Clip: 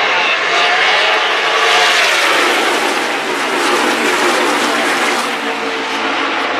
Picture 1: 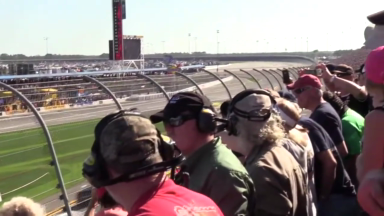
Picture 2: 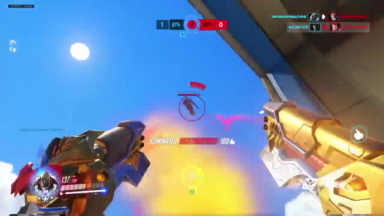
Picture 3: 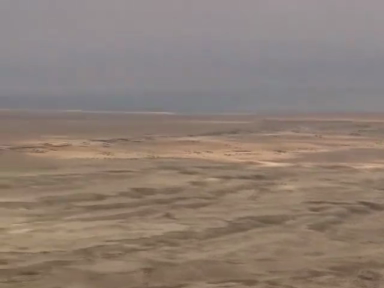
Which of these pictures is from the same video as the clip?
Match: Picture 1